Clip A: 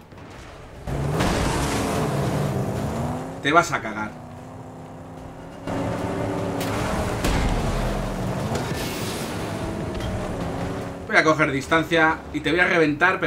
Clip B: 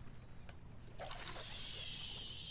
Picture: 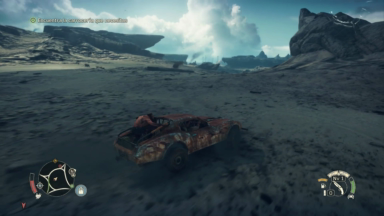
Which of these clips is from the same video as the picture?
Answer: A